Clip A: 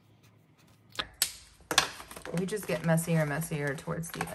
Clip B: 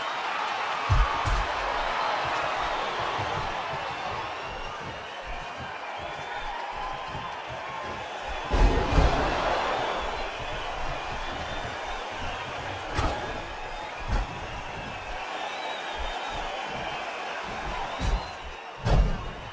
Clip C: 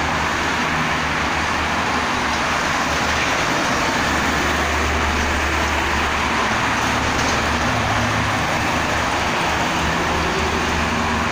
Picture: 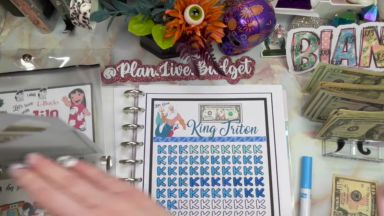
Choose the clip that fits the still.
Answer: A